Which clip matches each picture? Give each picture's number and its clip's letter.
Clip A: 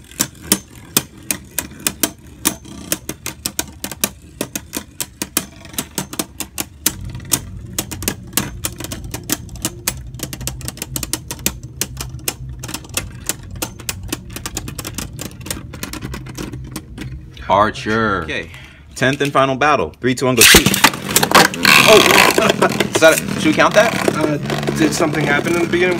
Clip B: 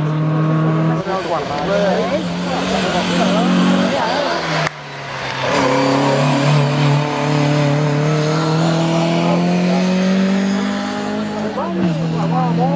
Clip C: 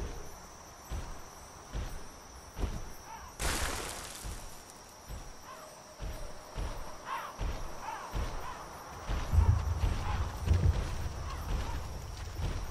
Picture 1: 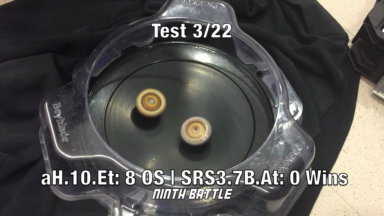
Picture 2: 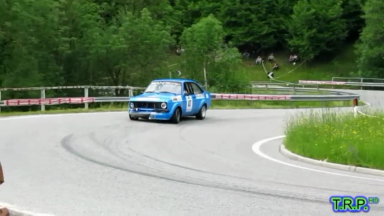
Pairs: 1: A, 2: B